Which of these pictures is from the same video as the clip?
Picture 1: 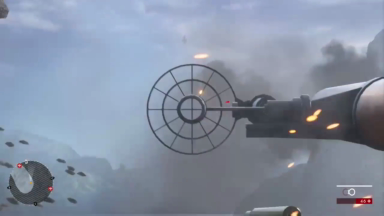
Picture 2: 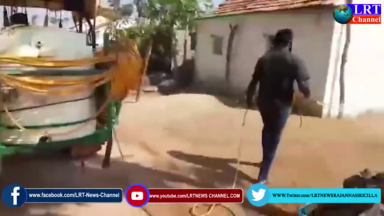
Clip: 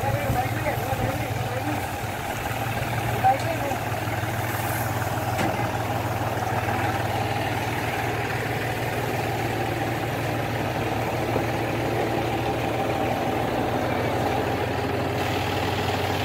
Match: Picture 2